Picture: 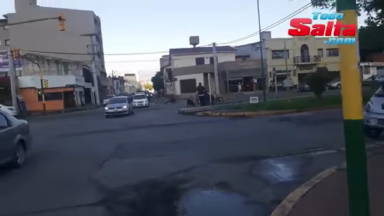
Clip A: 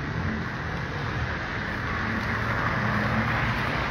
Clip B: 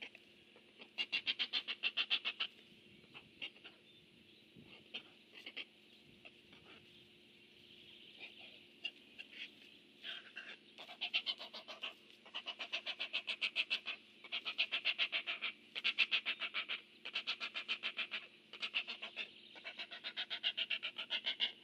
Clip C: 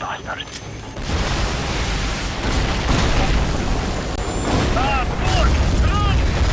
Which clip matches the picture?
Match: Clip A